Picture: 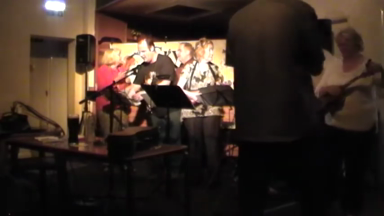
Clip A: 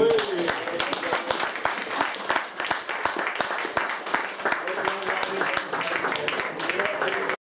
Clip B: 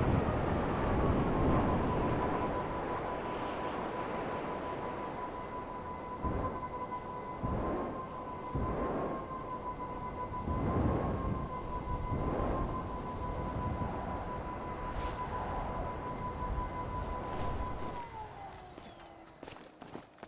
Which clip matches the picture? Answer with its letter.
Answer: A